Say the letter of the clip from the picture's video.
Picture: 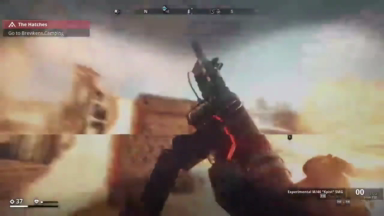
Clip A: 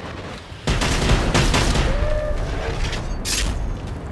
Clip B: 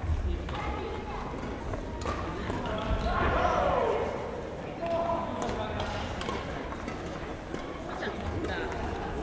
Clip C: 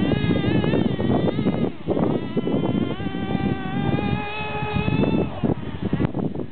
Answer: A